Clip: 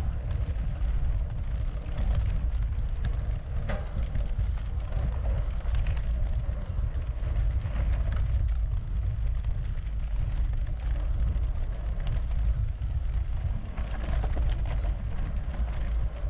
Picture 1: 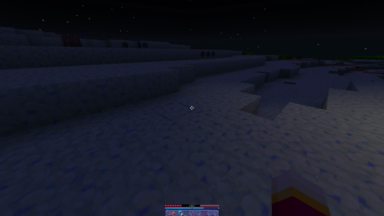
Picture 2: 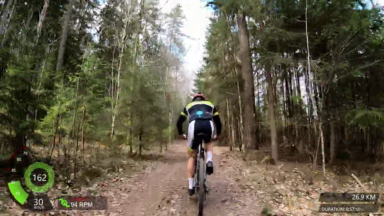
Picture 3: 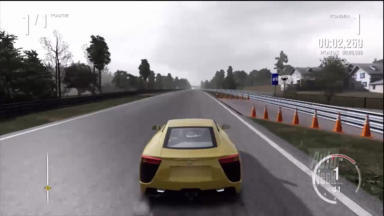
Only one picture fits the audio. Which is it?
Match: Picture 2